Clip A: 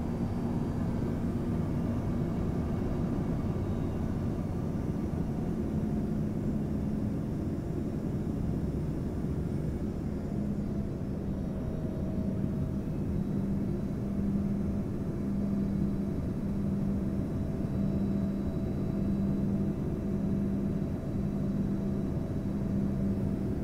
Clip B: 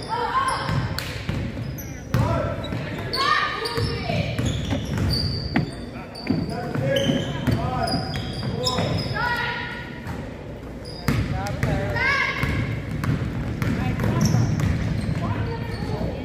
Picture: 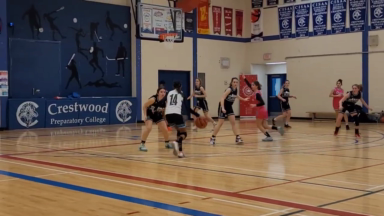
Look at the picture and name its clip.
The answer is B